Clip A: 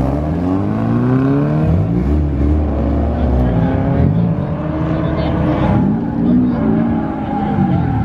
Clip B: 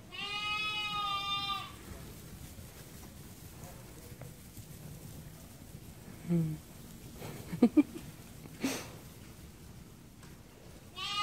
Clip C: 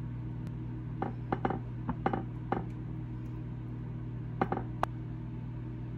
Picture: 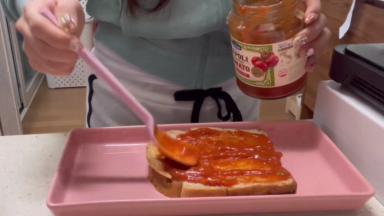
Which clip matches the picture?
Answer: C